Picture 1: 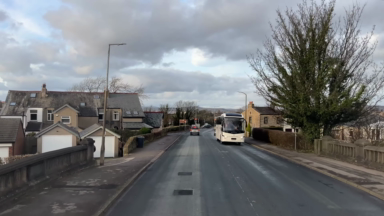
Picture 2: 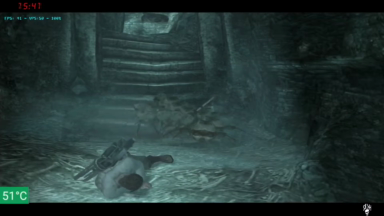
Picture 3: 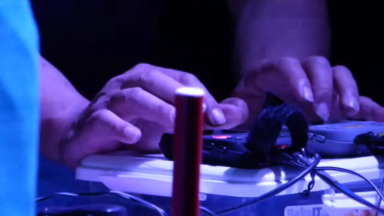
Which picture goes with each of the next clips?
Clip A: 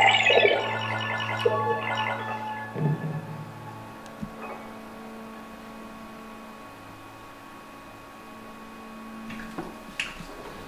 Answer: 3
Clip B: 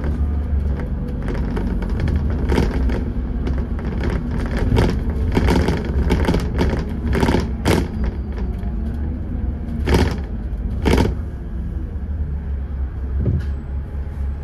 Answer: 1